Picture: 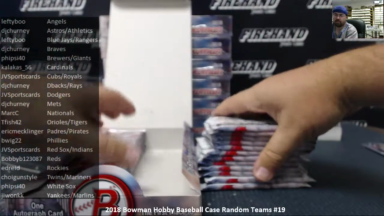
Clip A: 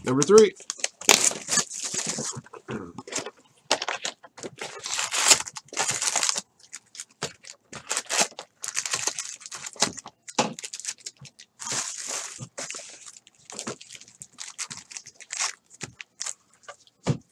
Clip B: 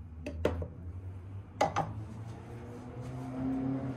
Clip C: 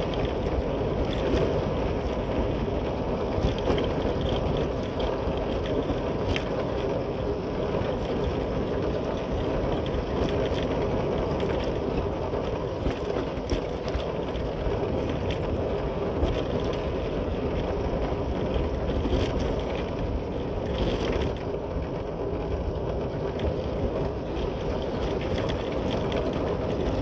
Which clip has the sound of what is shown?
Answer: A